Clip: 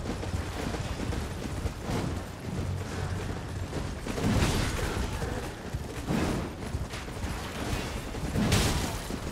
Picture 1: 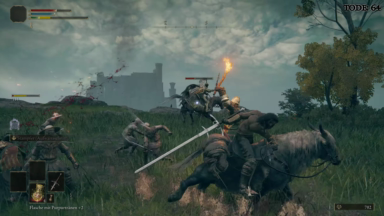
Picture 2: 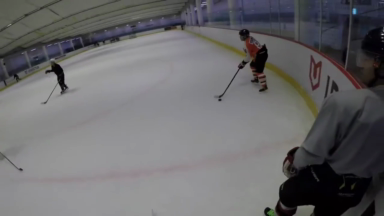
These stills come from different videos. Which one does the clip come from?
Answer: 1